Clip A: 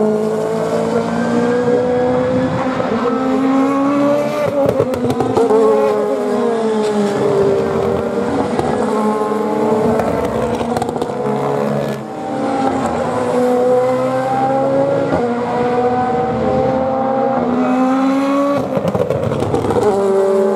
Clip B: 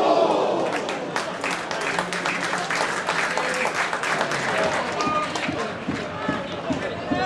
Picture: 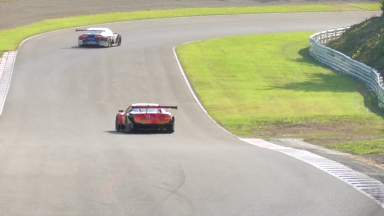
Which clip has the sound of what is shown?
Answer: A